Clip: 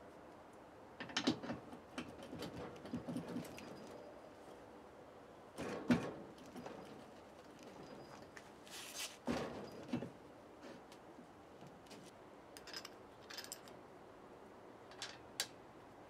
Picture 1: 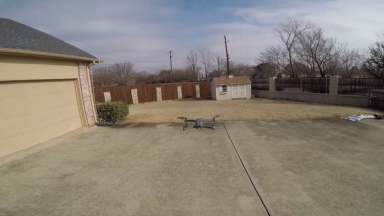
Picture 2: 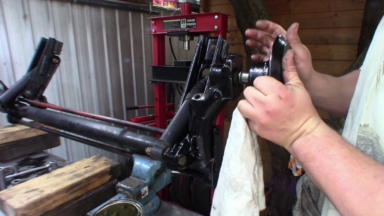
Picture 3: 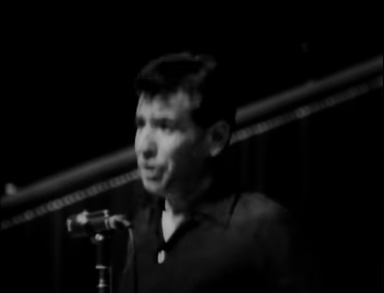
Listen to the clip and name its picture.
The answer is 2